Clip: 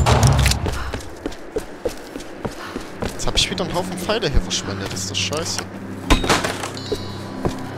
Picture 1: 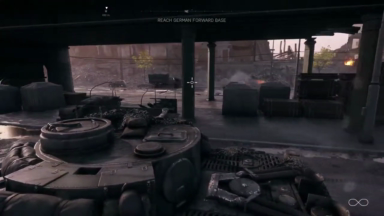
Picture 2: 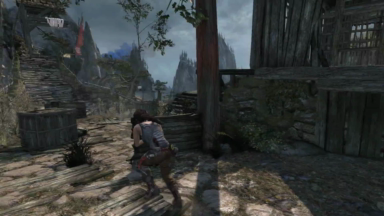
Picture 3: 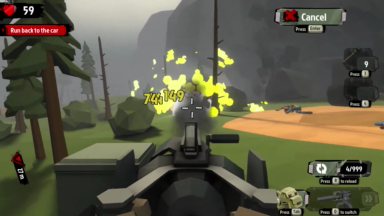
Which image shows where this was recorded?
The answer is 2